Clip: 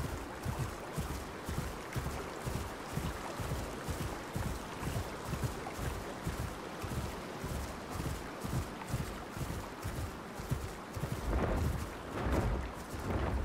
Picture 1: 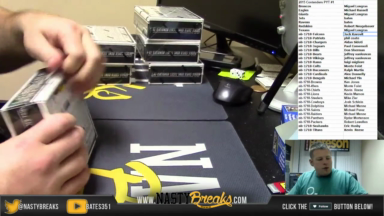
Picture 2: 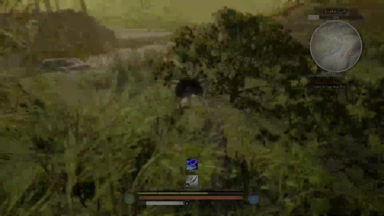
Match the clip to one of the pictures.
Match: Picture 2